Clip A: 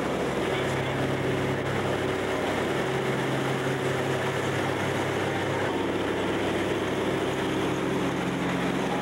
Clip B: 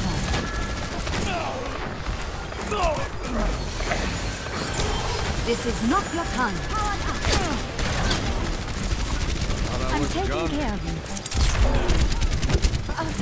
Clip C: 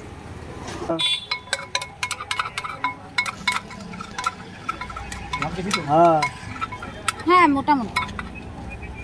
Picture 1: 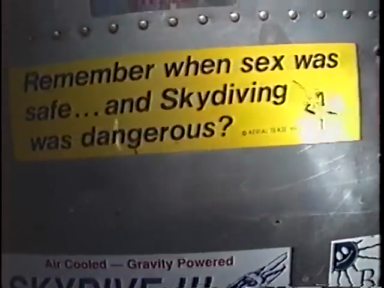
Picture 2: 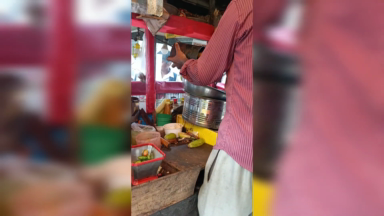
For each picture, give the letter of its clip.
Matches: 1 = A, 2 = C